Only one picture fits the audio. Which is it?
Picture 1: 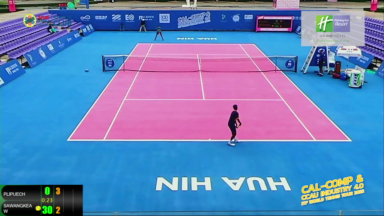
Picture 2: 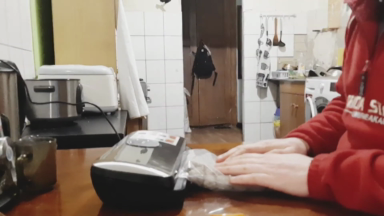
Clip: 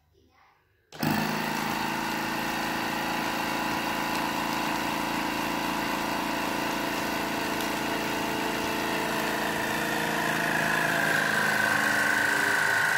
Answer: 2